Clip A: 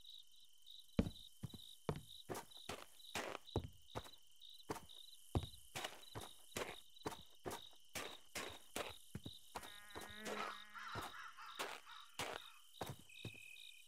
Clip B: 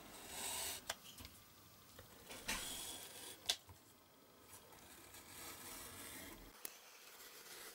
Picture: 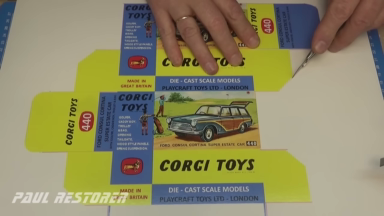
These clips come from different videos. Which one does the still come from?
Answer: B